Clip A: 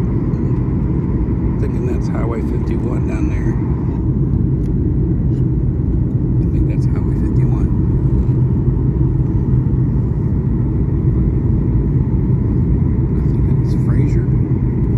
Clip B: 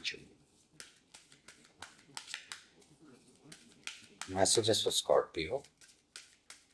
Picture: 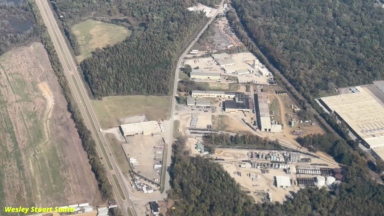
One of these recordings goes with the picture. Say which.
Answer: A